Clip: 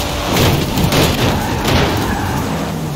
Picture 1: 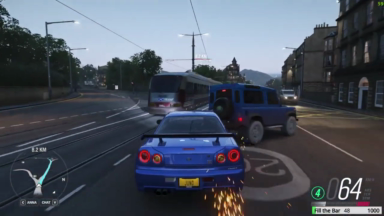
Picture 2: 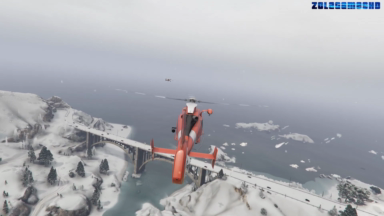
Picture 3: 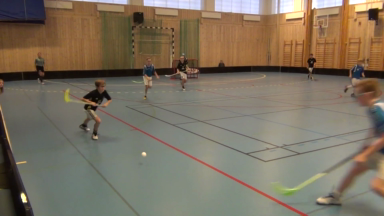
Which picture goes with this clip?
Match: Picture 1